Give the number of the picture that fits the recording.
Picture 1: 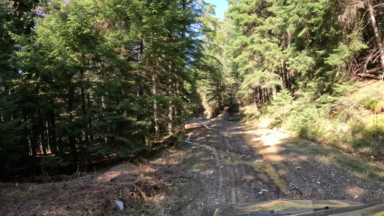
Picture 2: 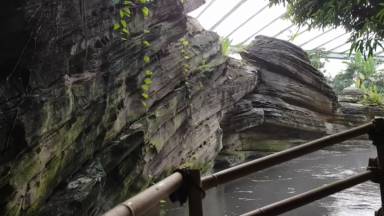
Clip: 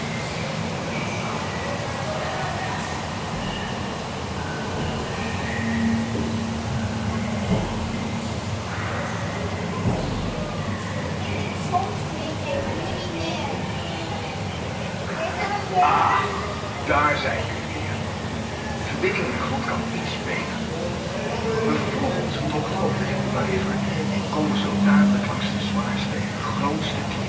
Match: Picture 2